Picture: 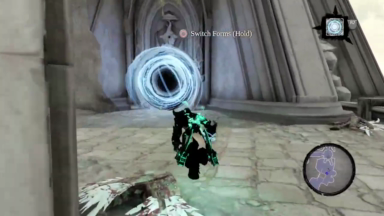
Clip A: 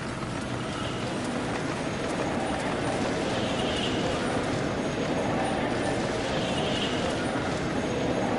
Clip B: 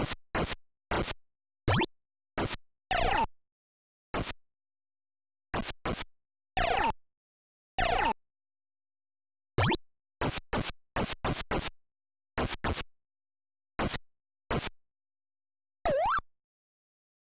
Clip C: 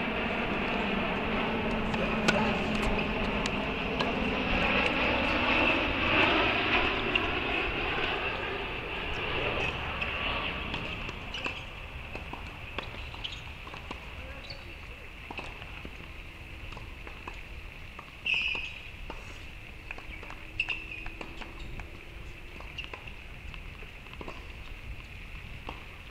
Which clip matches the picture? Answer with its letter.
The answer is A